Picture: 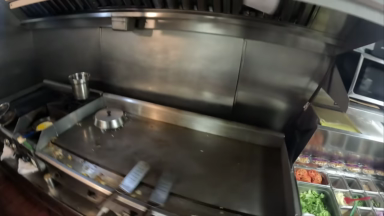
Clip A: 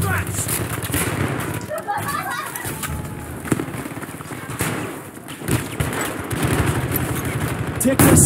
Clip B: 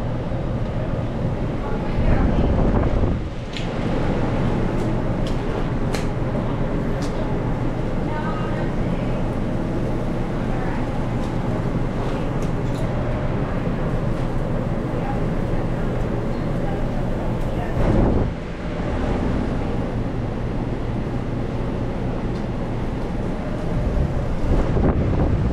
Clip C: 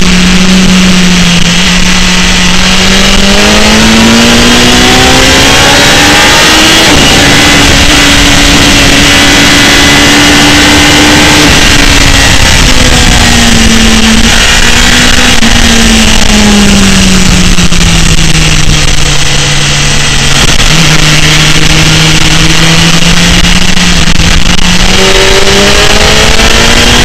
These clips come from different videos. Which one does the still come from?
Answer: B